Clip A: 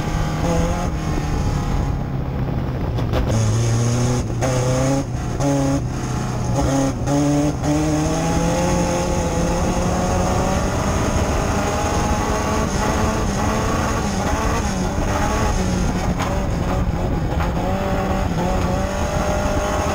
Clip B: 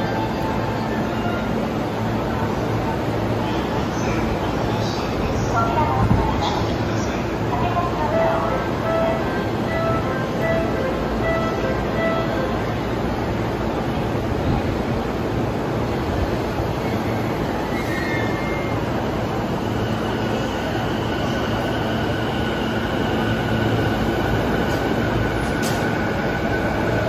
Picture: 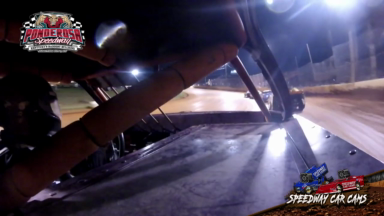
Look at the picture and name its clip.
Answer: A